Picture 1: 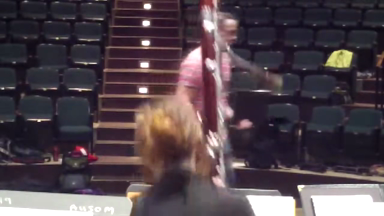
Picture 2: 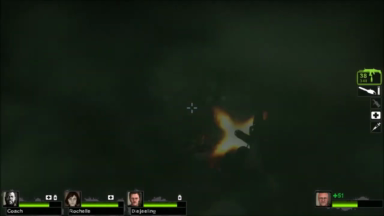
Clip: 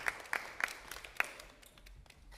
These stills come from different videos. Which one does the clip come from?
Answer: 1